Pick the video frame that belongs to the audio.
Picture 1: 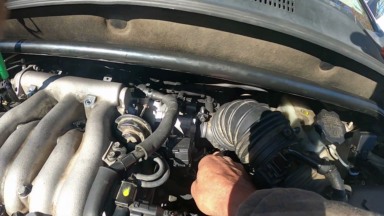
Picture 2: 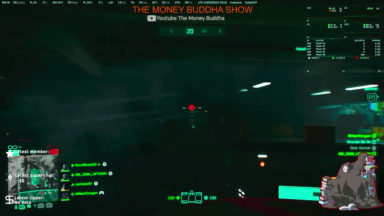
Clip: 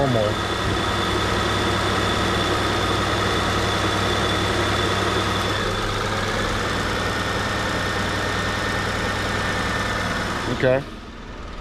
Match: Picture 1